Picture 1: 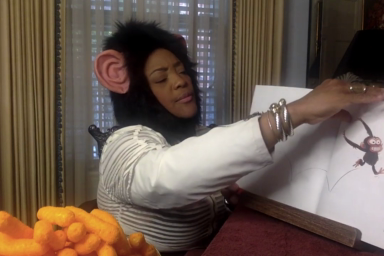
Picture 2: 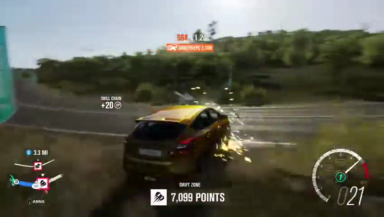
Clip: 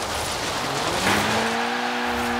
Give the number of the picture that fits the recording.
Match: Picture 2